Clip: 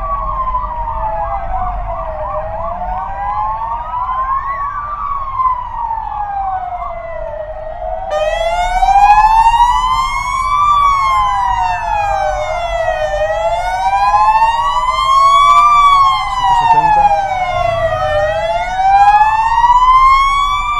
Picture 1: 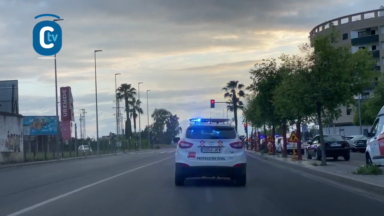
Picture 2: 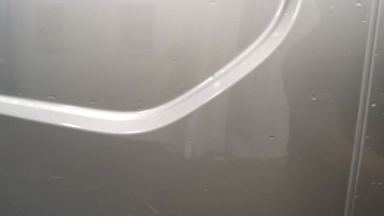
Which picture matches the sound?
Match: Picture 1